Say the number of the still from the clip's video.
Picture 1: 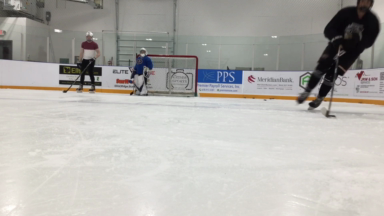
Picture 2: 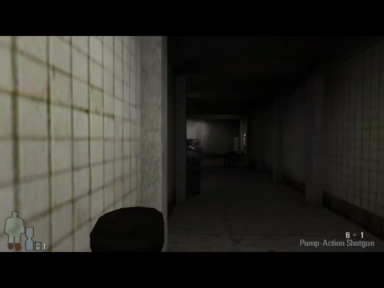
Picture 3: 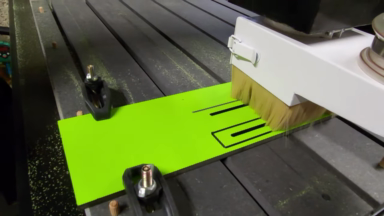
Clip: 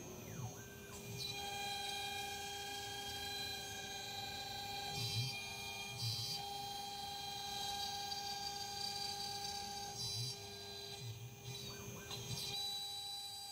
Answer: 3